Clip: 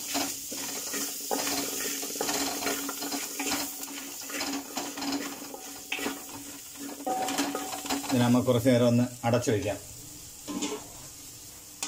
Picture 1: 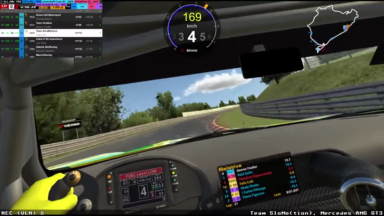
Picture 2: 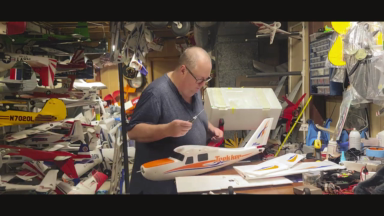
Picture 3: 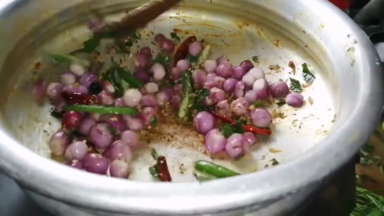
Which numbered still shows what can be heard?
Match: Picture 3